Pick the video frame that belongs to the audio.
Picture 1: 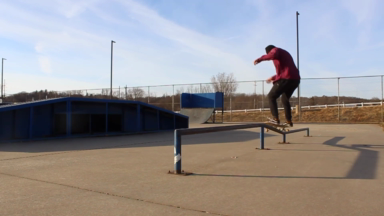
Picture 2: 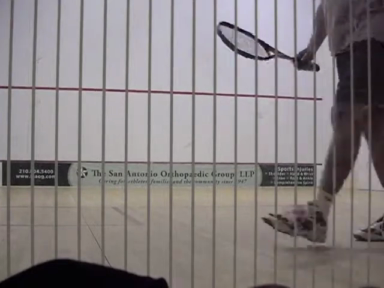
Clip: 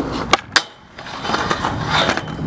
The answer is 1